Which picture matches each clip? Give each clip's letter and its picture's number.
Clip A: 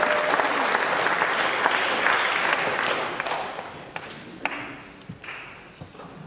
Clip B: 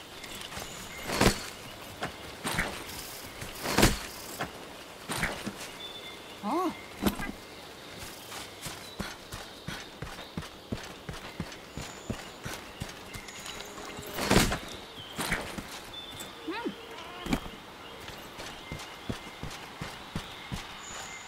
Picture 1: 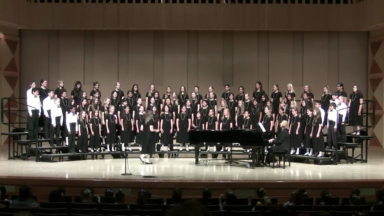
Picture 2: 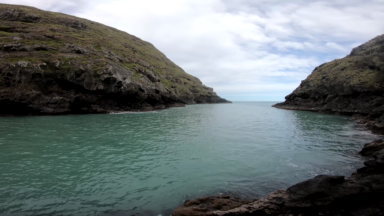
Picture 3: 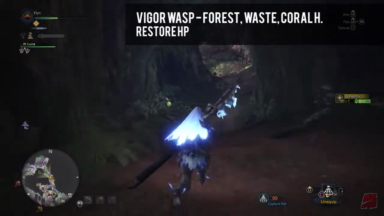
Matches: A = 1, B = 3